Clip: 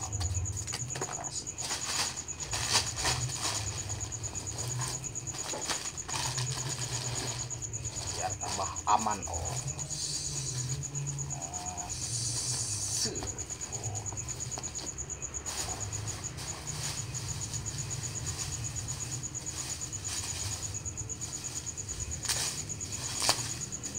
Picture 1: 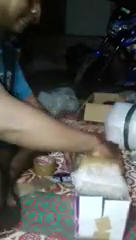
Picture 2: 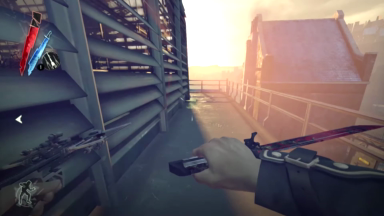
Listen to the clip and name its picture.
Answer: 1